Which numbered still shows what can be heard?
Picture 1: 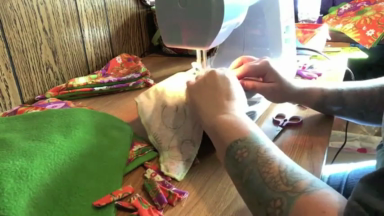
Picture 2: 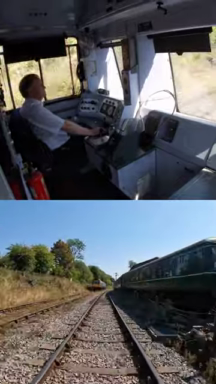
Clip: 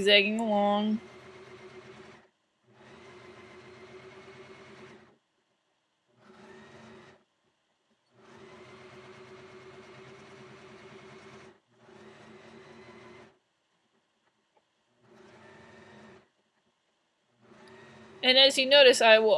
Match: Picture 1